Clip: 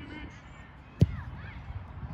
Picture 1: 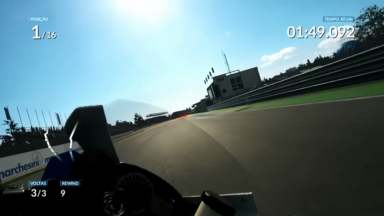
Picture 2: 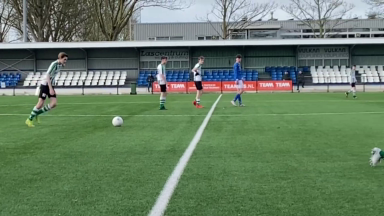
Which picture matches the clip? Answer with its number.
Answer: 2